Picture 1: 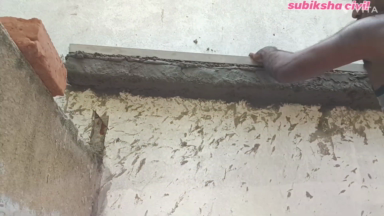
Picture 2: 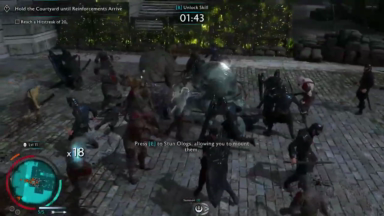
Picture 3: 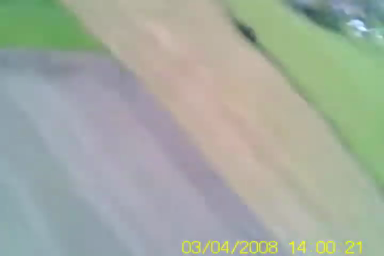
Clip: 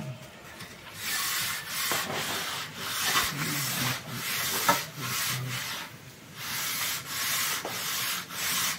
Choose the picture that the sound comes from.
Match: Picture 1